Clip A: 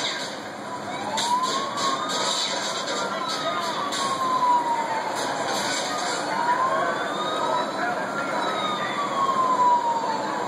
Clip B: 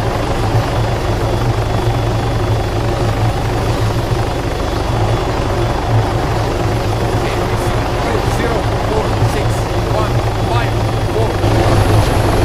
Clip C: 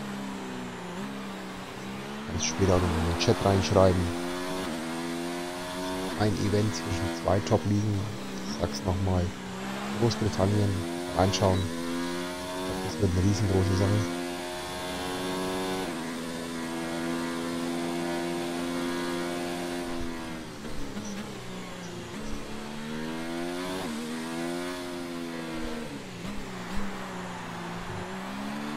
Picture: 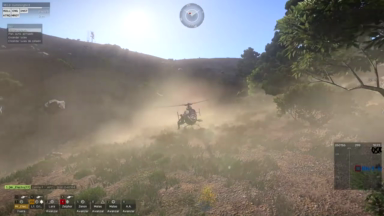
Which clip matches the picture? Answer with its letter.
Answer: B